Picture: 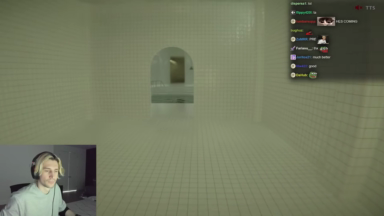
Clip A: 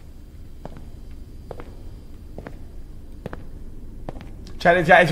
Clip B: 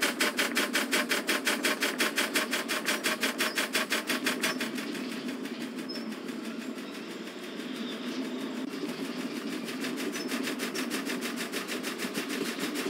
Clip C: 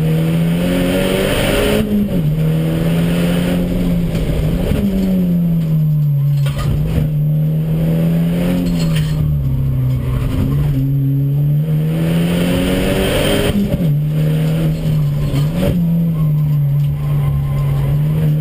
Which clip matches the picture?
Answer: A